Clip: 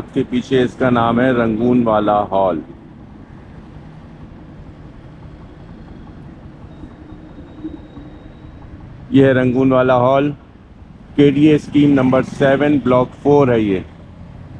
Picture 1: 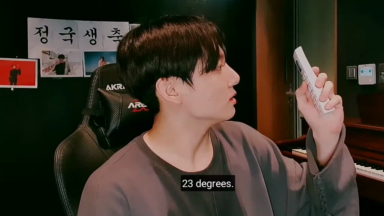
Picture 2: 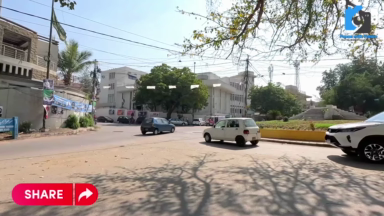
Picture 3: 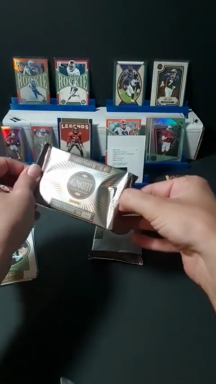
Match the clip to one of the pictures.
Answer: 2